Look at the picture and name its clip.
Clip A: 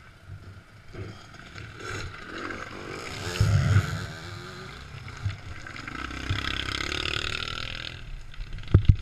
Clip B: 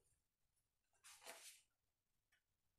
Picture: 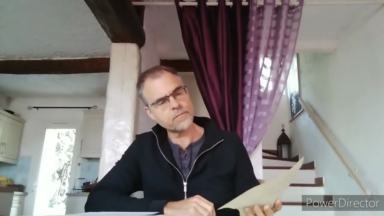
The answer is B